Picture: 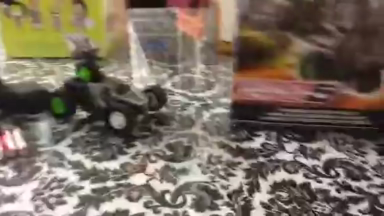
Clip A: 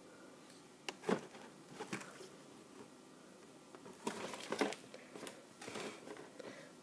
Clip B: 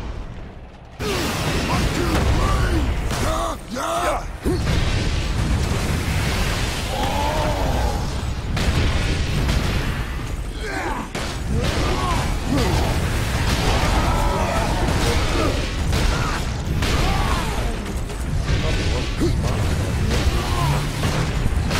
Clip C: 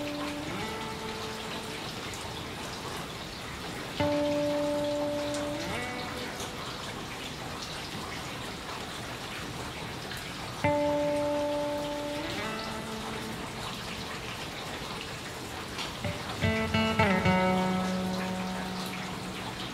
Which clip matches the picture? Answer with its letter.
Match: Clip A